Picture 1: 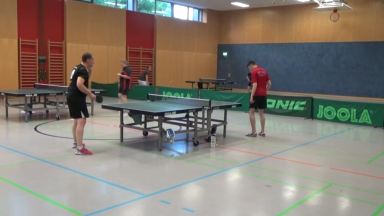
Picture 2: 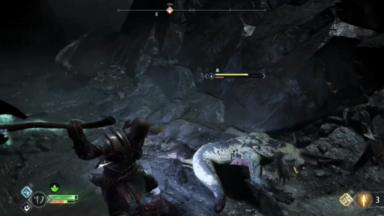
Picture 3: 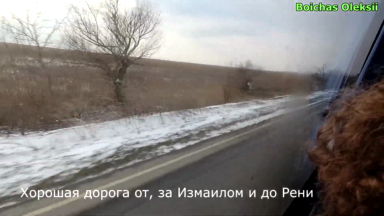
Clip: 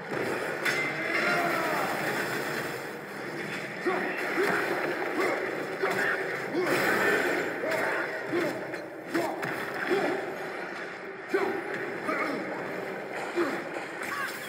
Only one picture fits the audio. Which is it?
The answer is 2